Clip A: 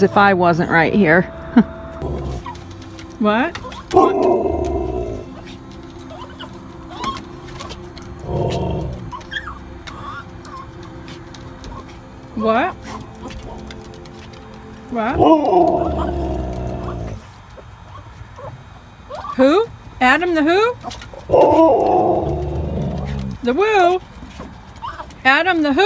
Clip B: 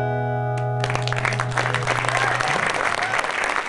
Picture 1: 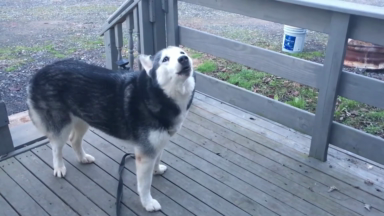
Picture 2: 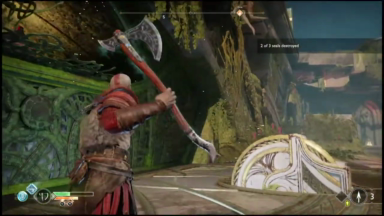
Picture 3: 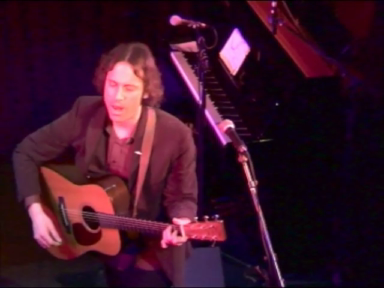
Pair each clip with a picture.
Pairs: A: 1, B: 3